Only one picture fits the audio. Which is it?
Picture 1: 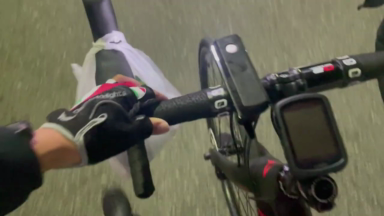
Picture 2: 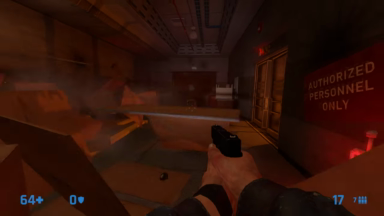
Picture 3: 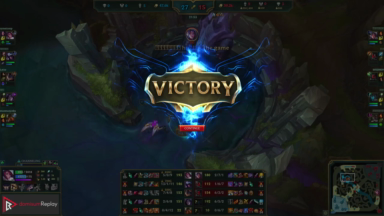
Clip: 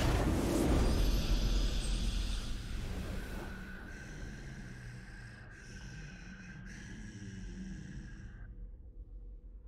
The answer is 3